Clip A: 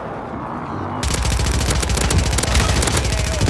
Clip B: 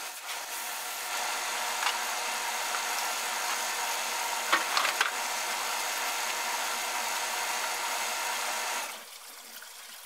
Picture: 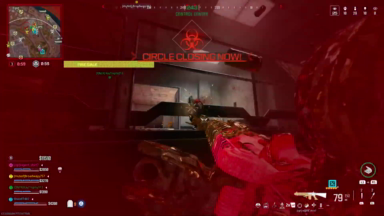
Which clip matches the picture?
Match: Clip A